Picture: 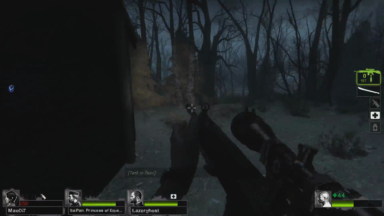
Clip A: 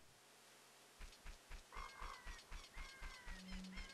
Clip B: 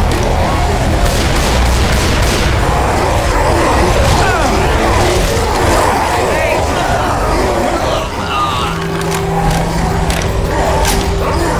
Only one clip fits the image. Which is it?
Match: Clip B